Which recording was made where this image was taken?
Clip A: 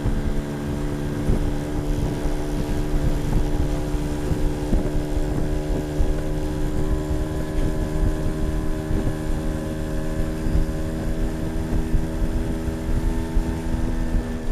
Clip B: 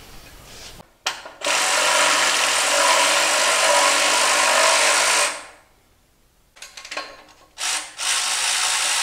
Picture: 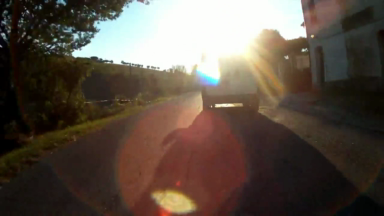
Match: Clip A